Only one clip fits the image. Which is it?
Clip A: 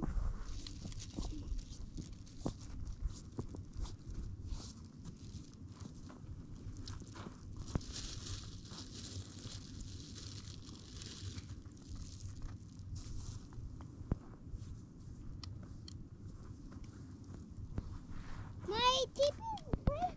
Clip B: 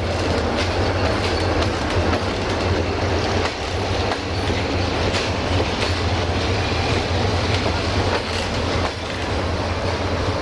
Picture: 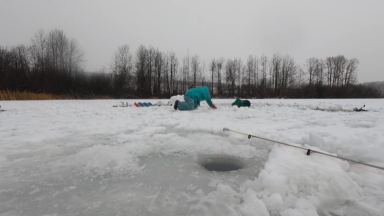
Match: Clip A